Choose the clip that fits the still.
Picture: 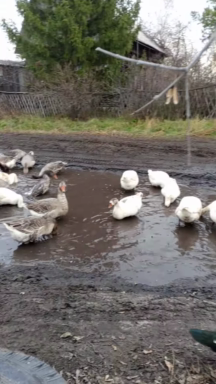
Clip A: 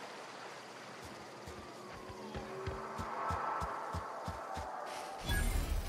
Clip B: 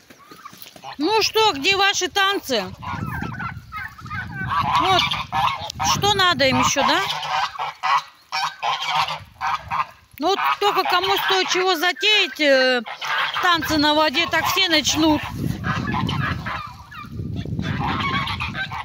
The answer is B